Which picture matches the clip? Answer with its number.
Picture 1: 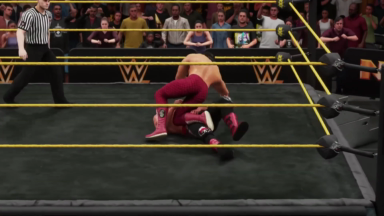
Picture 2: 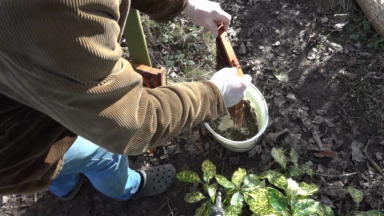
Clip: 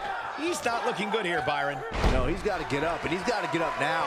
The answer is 1